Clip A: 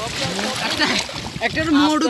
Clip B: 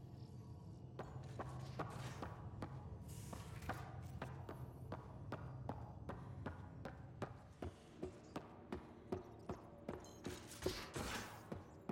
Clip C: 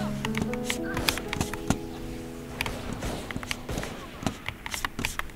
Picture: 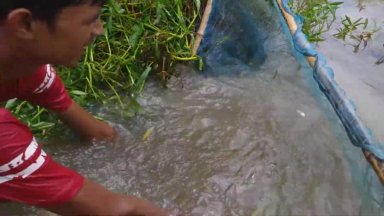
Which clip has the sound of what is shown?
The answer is A